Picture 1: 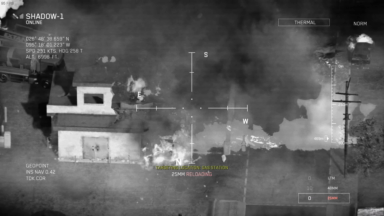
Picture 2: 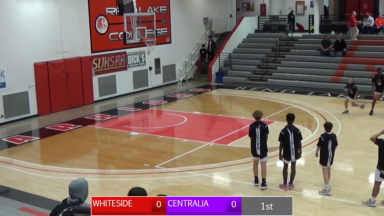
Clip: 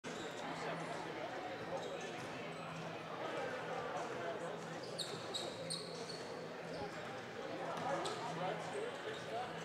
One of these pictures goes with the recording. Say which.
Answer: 2